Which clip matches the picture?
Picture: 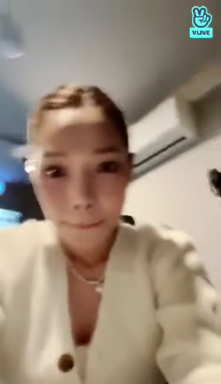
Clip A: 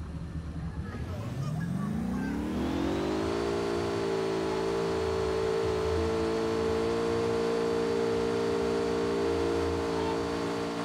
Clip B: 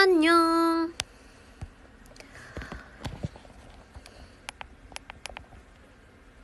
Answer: B